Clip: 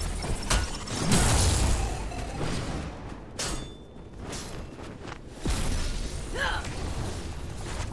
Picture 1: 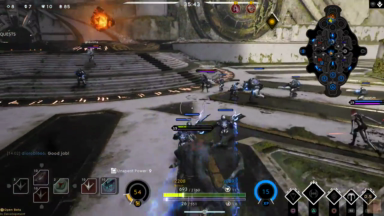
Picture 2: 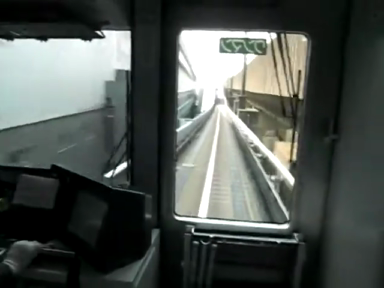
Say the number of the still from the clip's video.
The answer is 1